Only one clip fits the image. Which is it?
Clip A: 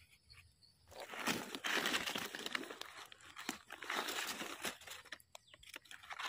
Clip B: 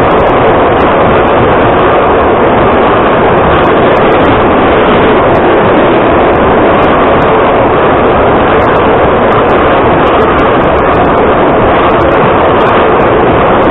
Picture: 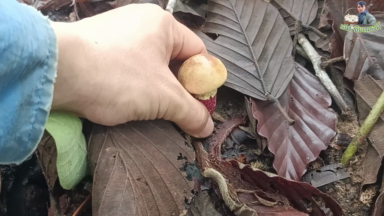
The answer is A